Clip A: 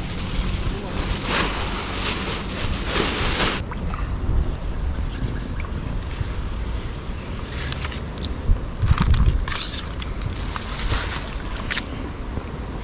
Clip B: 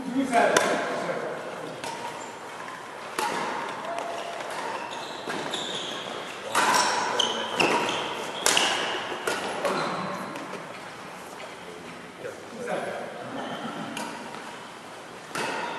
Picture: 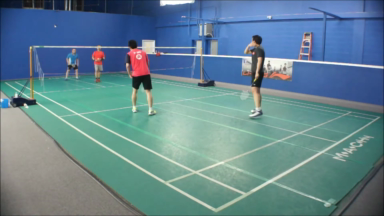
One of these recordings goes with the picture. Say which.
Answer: B